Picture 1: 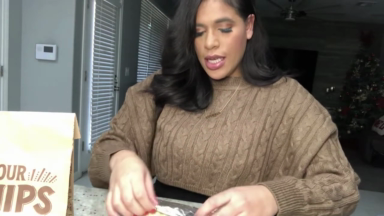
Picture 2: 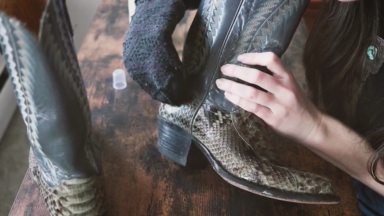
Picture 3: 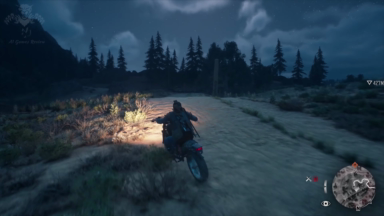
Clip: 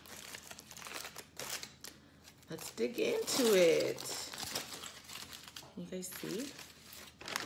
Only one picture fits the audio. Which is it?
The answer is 1